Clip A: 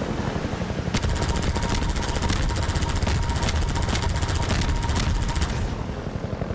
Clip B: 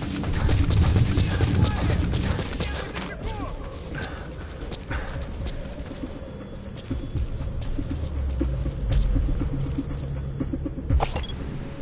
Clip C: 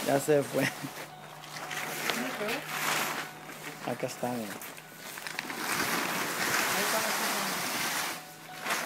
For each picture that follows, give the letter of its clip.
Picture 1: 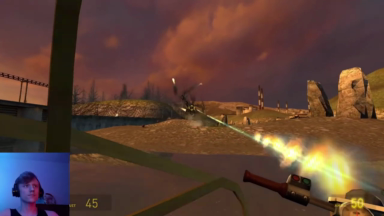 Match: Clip A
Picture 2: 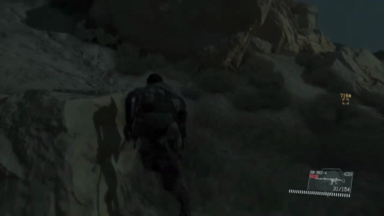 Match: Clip B